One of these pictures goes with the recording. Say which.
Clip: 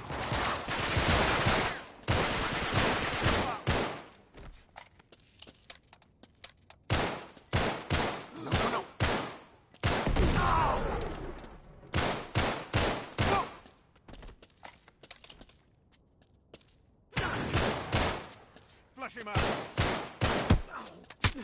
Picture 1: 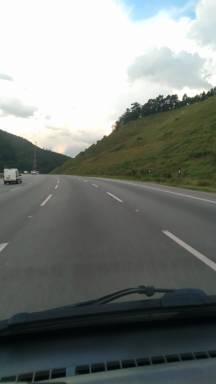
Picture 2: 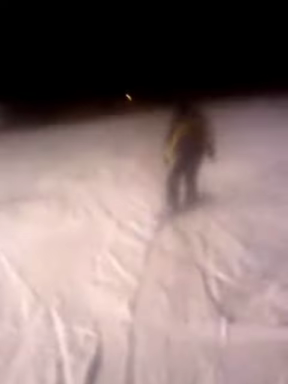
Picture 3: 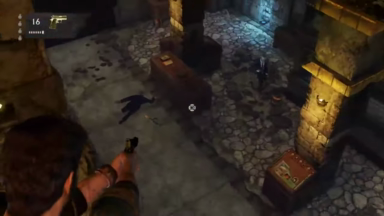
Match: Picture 3